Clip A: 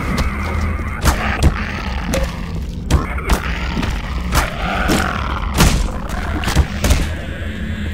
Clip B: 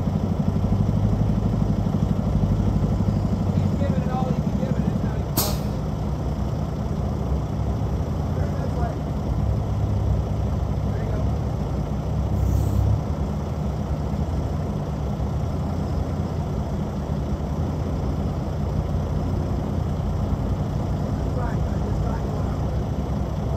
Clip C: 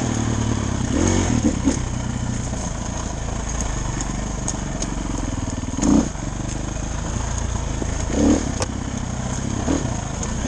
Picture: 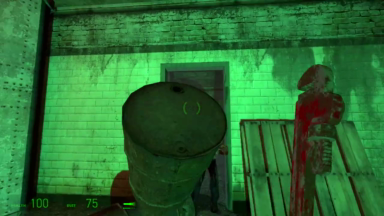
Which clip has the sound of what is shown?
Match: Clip A